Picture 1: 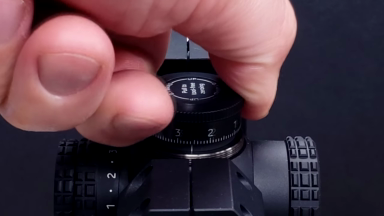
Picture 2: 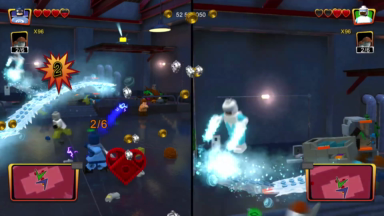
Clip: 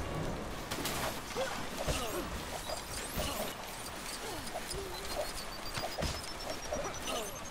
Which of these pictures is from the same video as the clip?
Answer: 2